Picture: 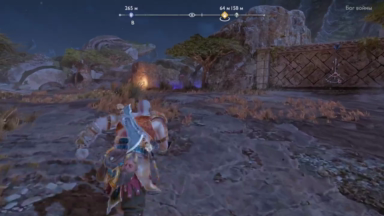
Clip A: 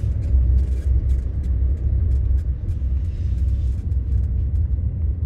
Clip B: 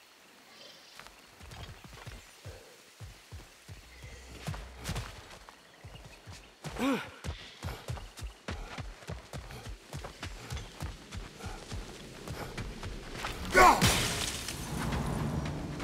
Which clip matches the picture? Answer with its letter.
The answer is B